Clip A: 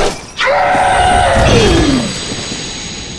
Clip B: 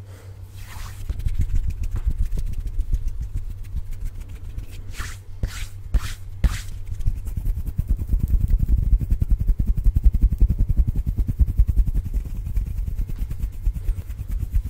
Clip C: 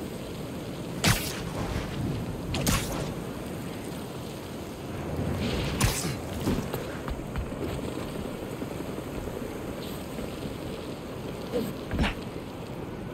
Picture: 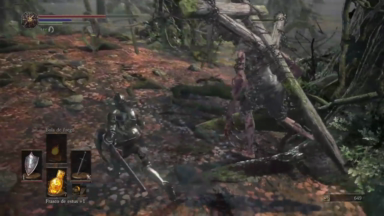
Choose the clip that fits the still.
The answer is A